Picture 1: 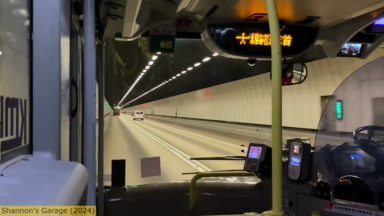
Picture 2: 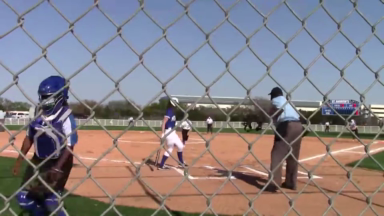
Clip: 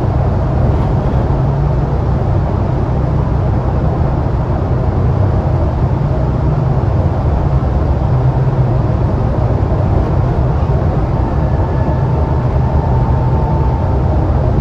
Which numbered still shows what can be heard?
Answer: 1